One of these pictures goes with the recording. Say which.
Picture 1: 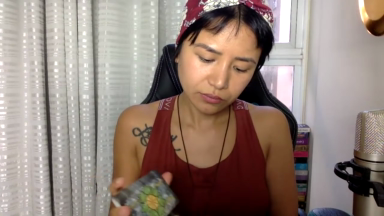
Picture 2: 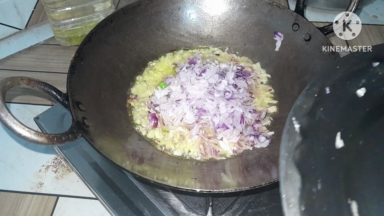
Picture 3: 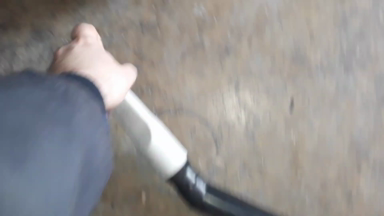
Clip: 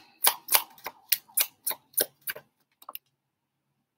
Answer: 1